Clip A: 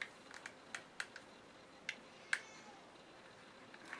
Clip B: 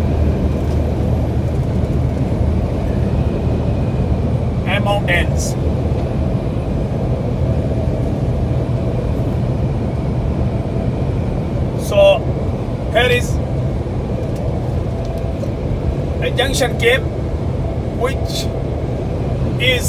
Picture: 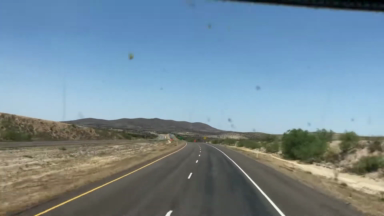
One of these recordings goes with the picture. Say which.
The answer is B